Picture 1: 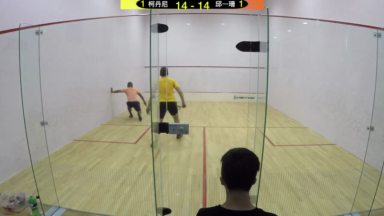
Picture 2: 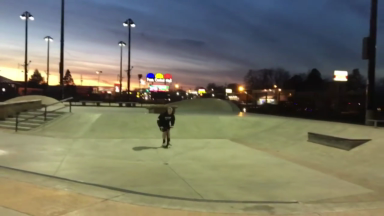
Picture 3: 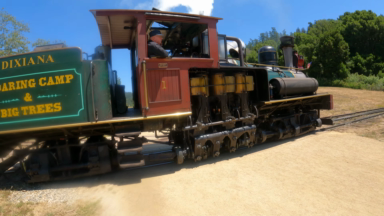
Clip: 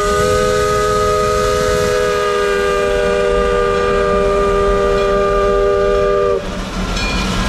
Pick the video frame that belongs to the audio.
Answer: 3